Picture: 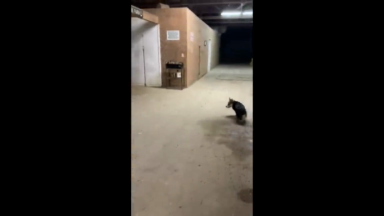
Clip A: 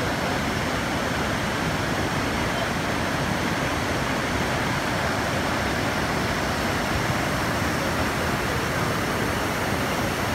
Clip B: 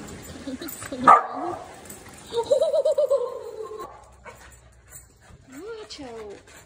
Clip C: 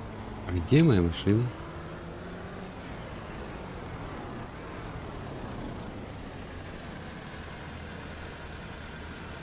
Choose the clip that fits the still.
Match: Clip B